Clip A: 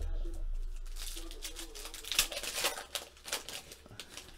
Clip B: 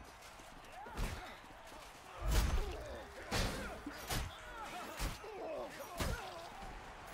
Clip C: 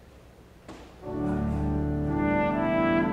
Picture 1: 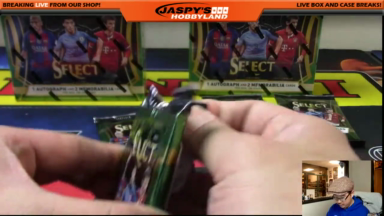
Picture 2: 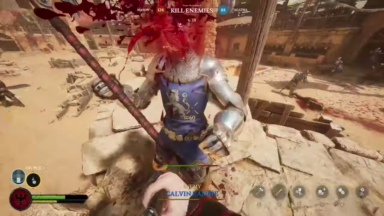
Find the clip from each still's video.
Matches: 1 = A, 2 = B